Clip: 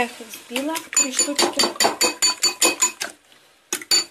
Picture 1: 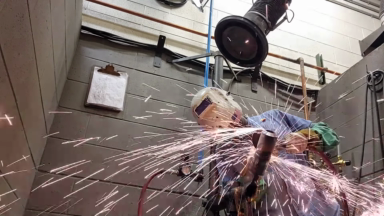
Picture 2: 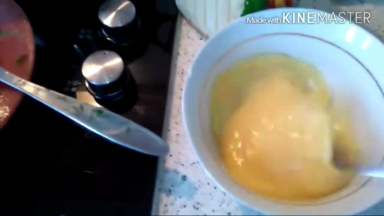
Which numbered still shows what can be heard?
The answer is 2